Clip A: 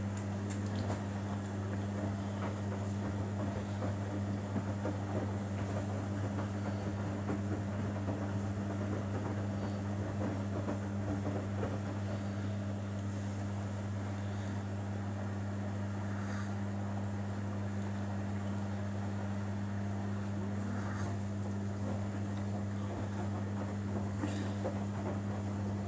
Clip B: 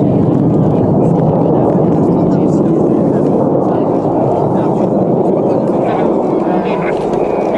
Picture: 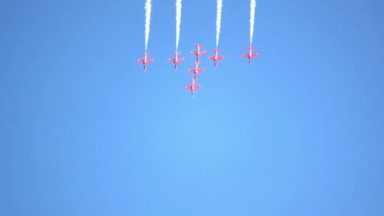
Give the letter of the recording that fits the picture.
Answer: B